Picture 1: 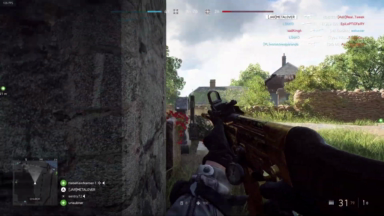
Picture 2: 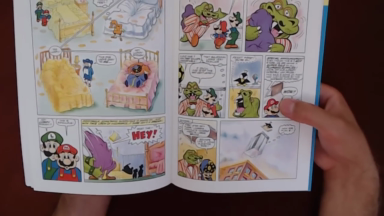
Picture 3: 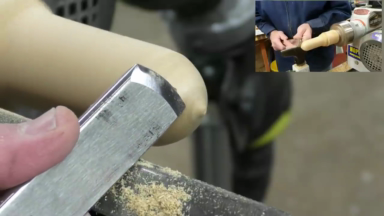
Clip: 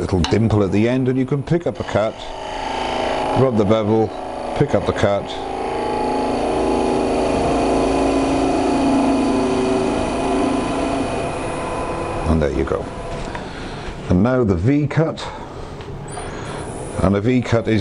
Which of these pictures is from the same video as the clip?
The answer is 3